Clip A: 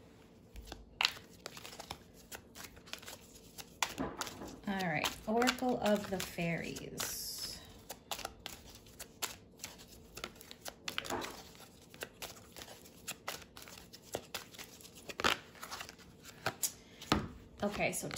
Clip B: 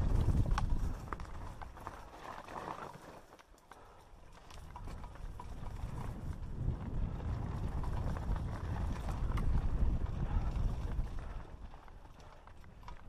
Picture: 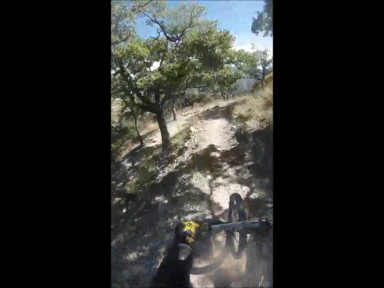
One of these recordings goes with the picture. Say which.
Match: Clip B